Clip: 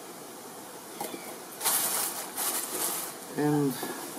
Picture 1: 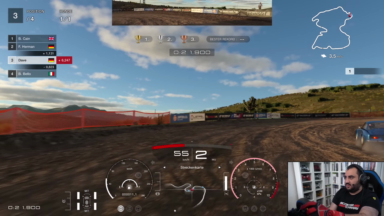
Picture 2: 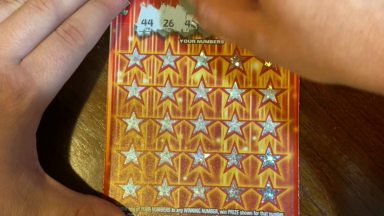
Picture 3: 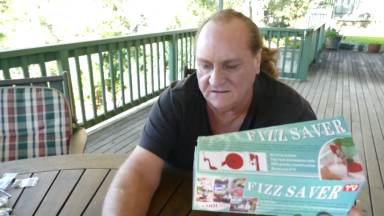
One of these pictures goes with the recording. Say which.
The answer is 3